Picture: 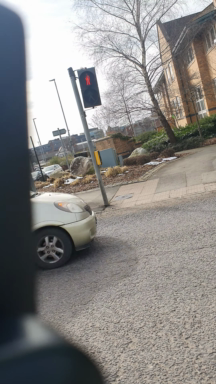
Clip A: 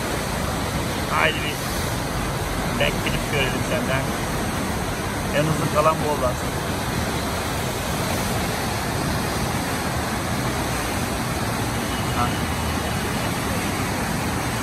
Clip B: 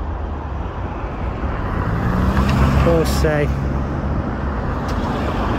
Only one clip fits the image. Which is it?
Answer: B